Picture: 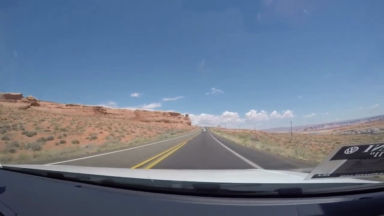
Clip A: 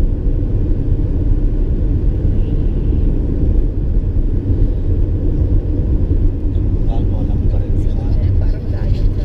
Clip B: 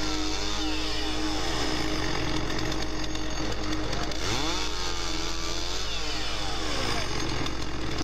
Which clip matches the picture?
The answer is A